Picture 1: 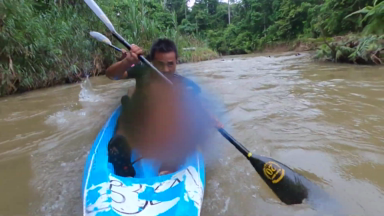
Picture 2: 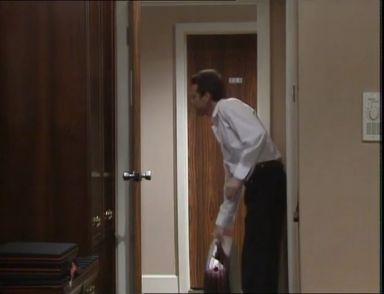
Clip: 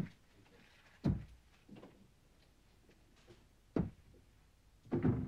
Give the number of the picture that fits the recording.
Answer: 2